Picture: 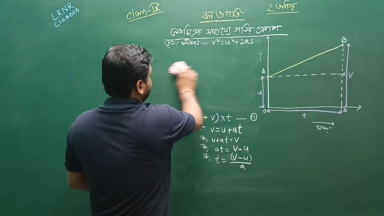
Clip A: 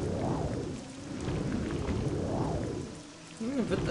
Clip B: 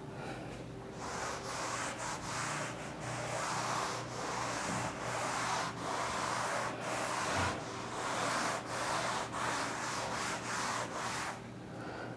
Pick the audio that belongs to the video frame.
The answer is B